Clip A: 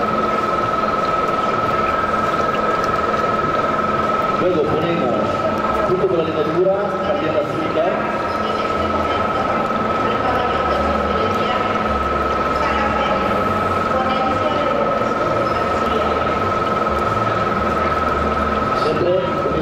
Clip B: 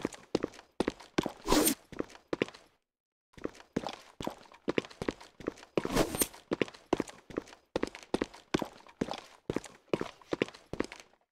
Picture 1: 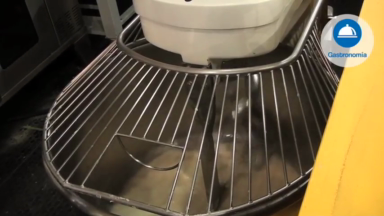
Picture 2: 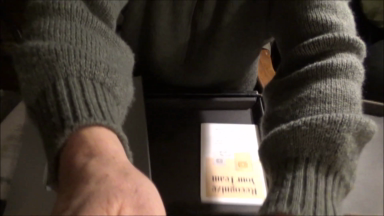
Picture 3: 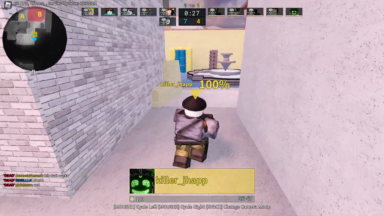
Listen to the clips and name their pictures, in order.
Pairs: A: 1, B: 3